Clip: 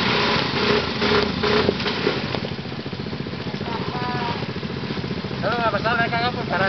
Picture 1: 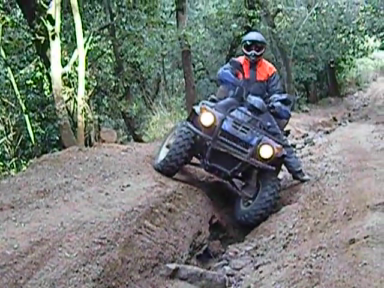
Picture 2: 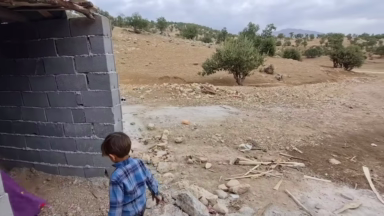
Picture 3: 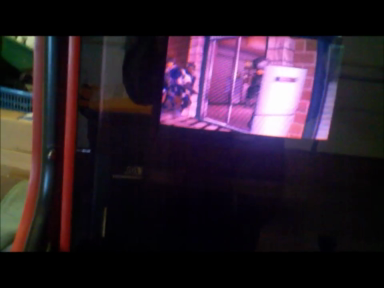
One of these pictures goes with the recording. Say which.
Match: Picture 1